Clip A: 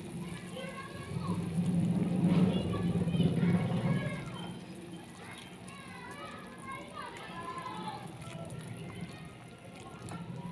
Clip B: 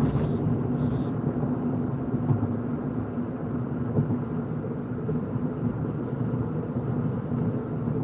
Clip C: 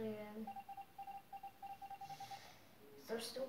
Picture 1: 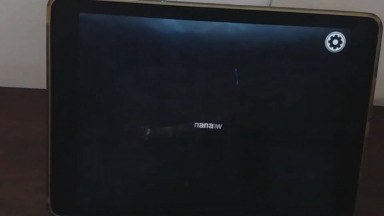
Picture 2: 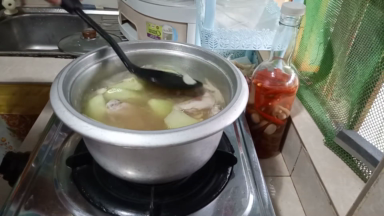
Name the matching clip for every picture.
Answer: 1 C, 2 A